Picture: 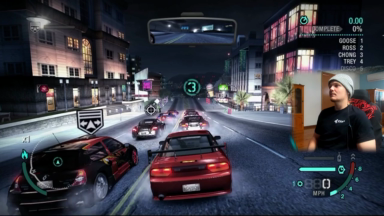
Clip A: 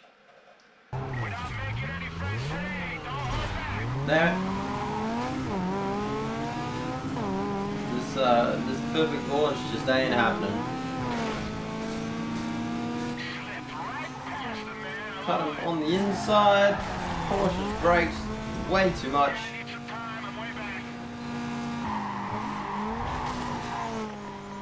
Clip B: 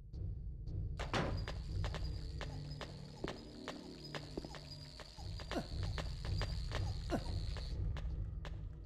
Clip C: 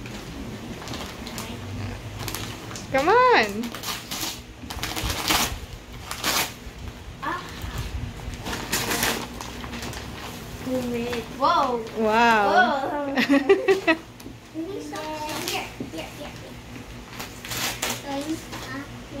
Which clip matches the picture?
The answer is A